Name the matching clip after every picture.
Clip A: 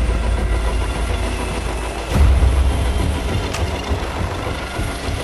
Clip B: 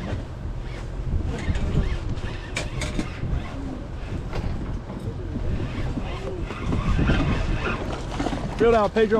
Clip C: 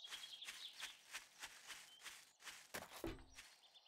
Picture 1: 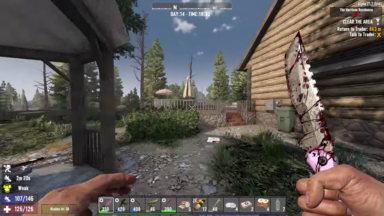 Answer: C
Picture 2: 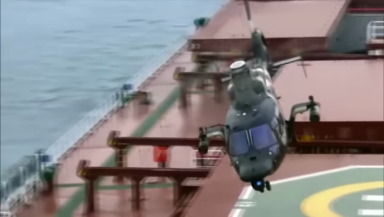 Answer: A